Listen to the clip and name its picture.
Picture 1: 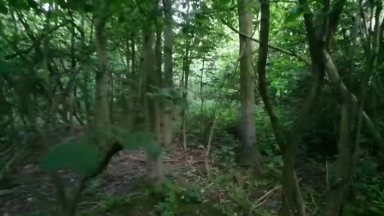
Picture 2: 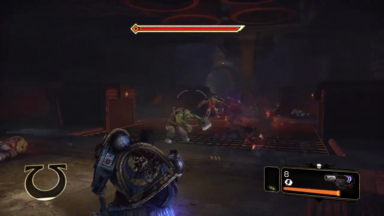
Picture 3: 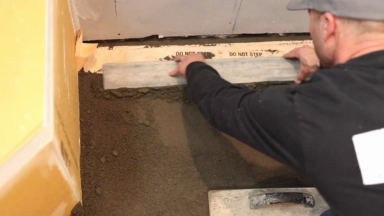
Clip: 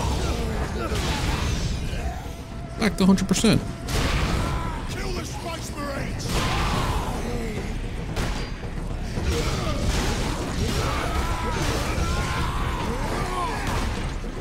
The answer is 2